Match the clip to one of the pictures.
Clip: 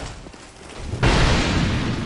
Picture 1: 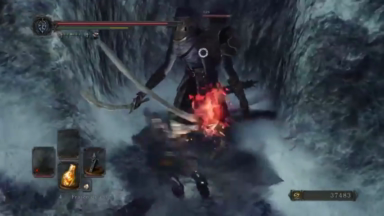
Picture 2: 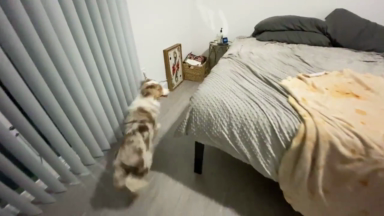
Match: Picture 1